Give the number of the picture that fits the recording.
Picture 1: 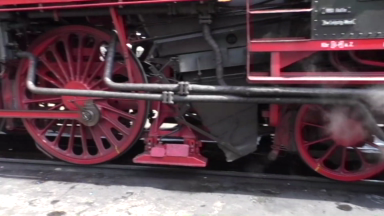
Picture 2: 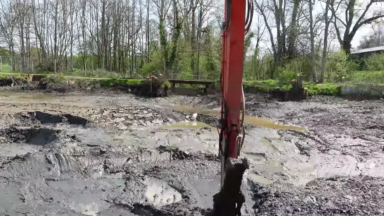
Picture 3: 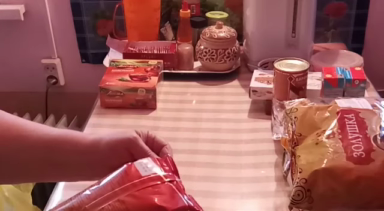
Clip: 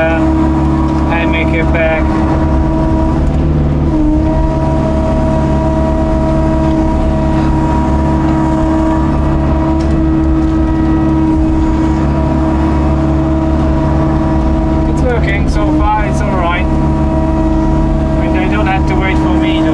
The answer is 2